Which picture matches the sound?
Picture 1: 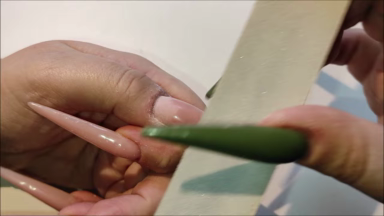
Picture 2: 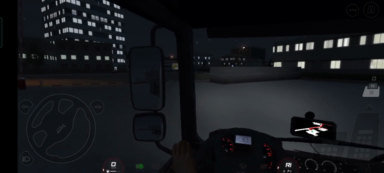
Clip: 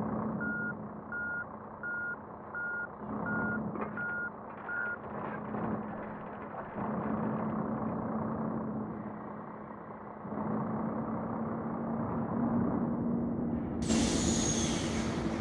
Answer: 2